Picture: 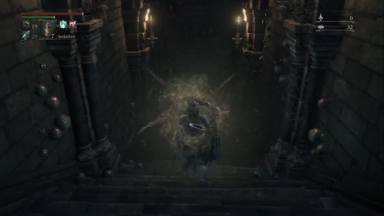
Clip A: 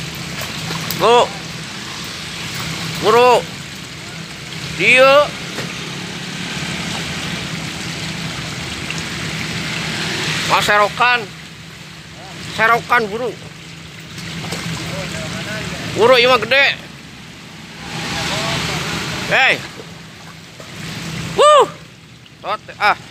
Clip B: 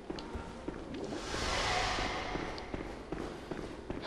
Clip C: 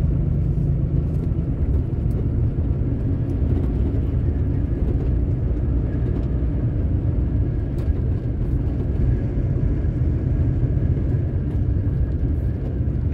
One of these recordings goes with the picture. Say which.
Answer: B